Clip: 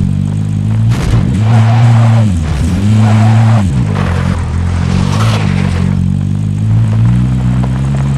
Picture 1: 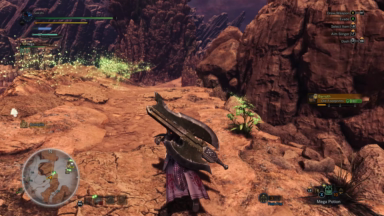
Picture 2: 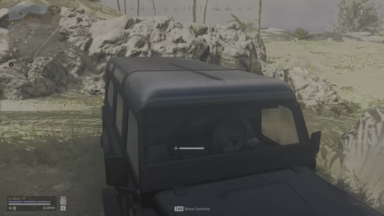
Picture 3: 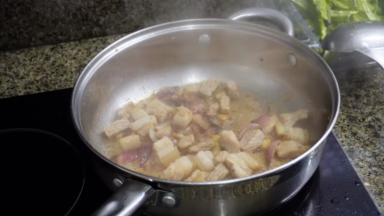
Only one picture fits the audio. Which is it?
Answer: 2